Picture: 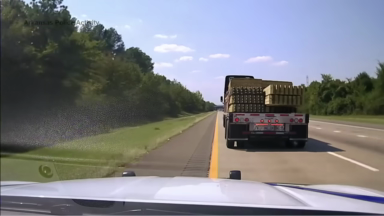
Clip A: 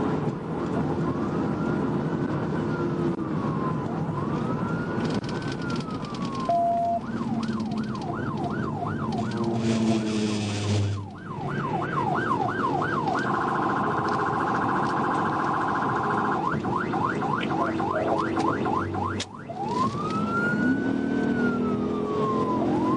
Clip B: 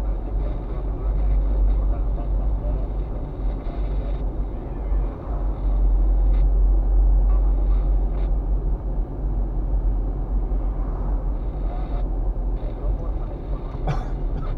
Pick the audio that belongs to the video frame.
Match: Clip A